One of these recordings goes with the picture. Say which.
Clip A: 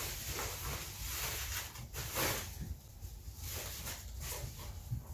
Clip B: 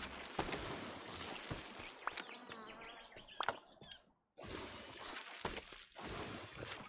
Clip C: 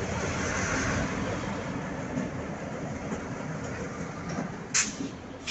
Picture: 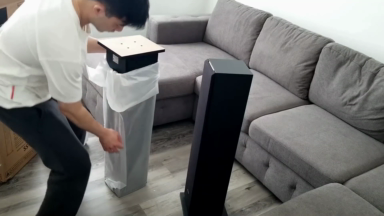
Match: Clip A